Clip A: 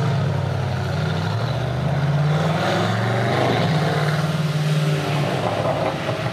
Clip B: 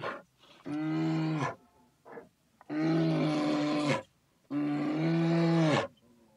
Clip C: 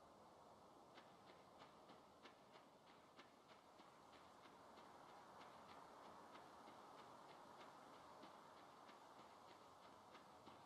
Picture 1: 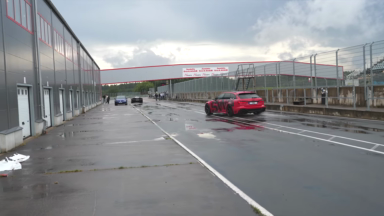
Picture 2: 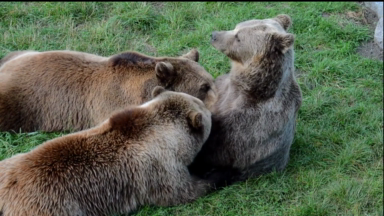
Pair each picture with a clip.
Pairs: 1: A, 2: B